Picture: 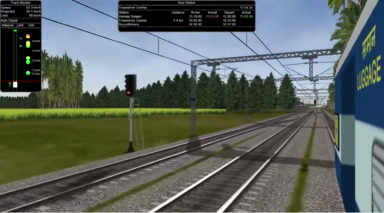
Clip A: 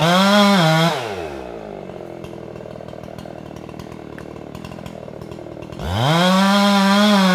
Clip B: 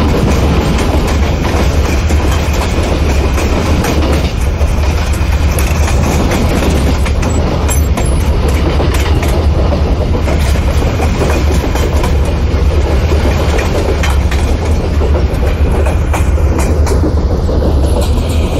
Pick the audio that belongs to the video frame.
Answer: B